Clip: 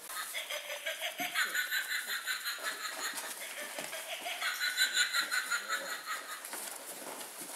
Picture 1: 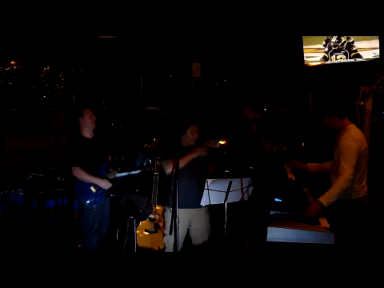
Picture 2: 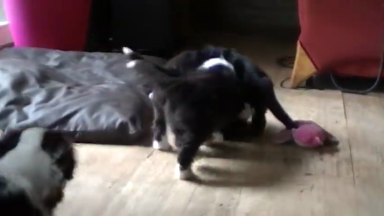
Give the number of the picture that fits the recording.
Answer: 2